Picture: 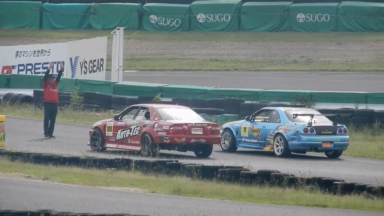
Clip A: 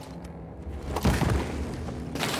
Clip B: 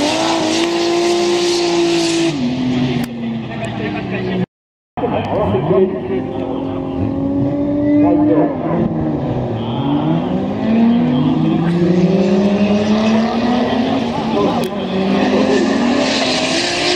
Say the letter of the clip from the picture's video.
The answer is B